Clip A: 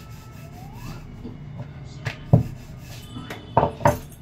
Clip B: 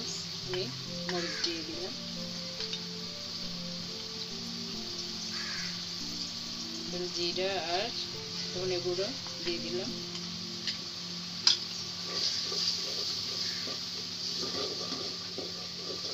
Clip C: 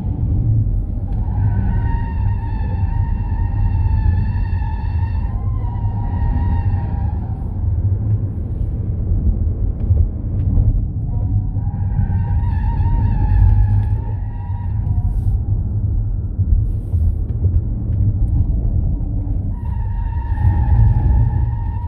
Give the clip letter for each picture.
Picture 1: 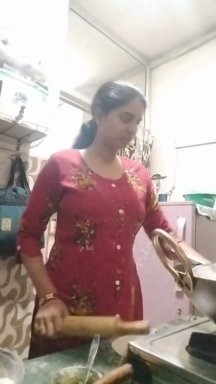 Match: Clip A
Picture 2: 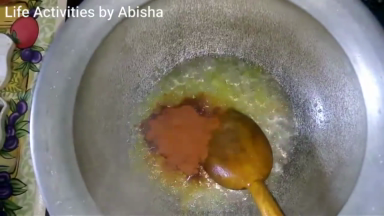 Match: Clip B